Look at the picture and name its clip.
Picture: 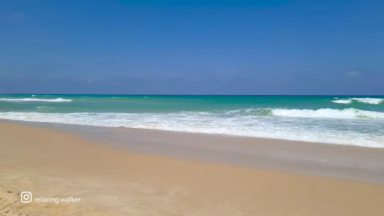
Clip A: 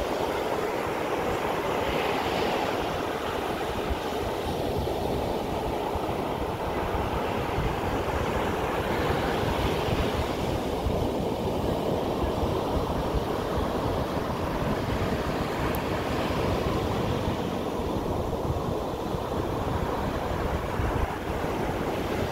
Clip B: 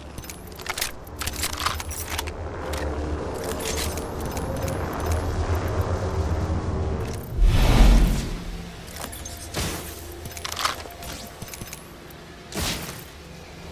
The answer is A